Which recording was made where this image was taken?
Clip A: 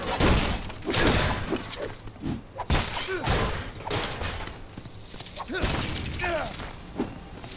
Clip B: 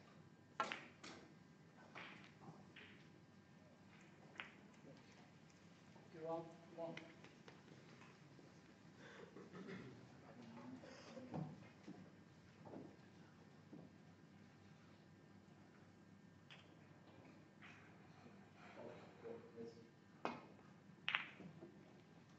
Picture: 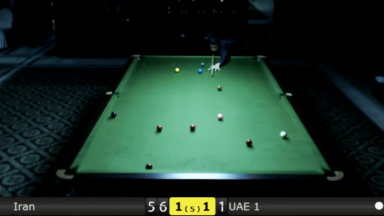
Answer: B